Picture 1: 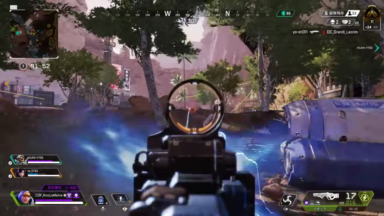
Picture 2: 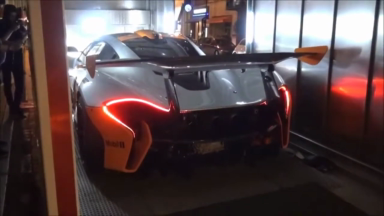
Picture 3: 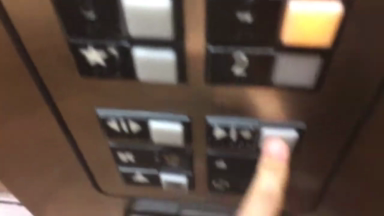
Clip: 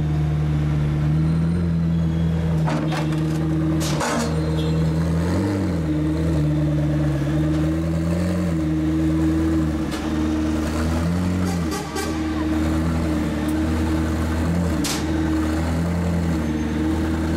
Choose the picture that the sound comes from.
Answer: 2